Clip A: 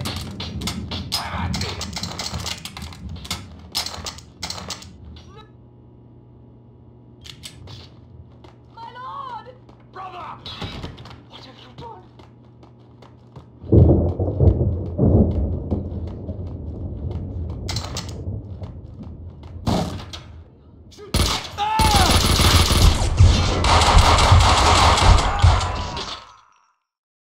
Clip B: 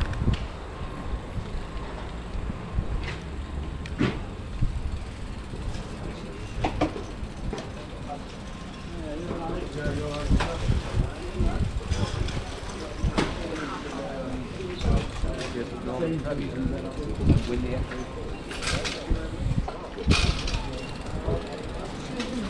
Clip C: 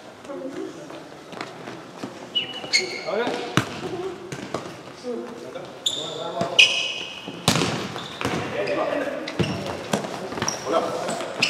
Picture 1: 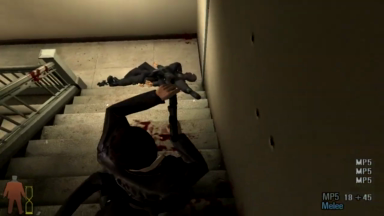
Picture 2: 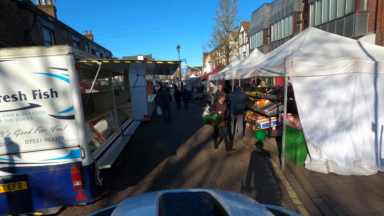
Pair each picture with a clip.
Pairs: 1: A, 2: B